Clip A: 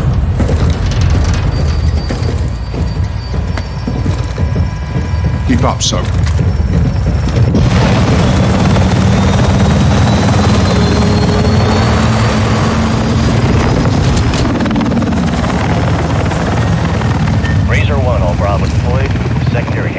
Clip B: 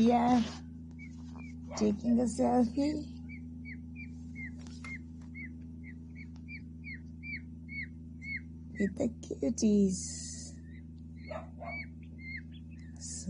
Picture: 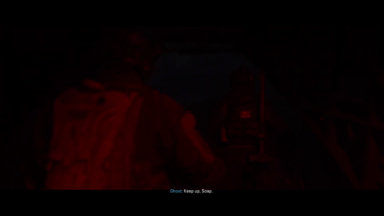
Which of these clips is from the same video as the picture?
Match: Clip A